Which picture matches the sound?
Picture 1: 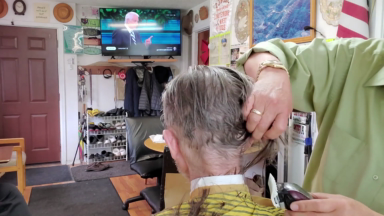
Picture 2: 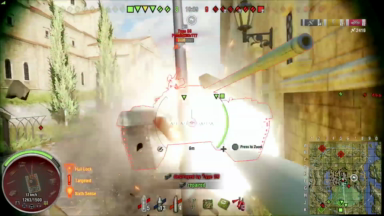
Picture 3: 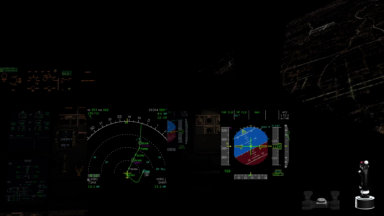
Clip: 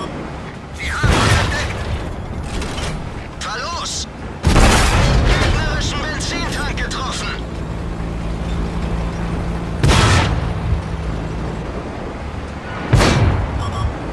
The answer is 2